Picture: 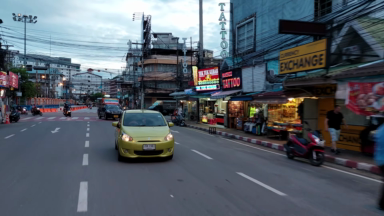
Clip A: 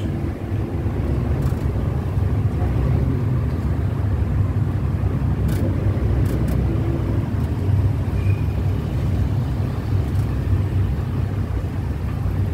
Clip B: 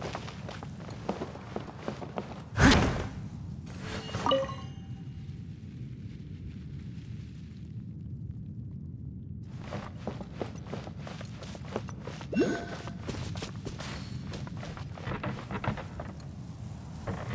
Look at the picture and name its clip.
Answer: A